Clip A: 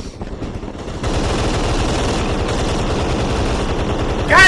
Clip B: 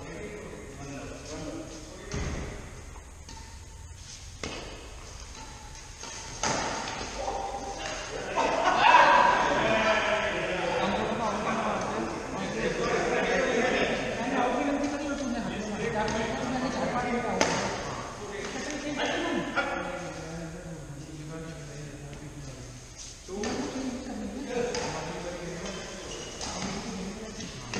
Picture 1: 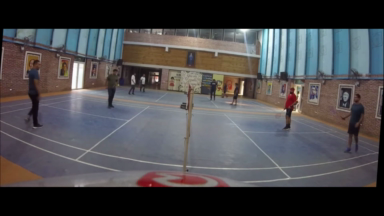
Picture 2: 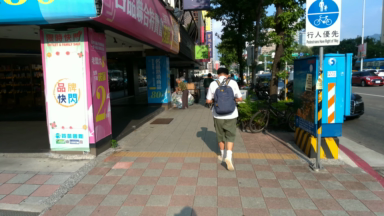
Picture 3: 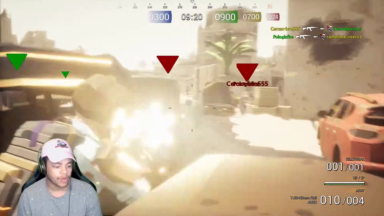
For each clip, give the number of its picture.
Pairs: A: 3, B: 1